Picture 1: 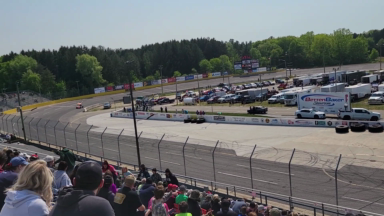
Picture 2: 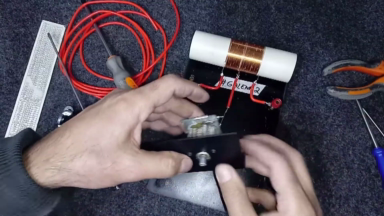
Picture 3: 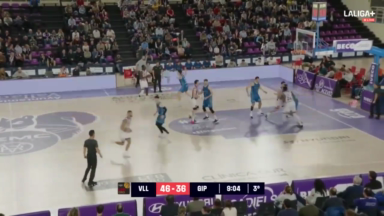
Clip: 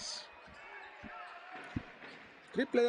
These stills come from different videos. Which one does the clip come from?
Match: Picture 3